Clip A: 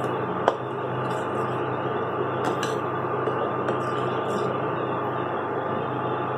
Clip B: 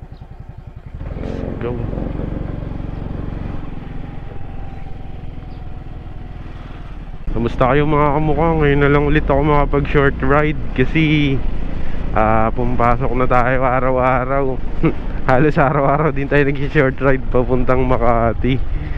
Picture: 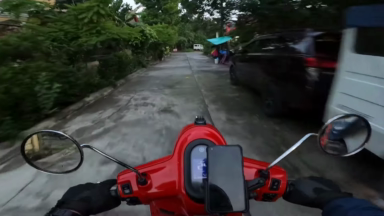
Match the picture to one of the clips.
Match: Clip B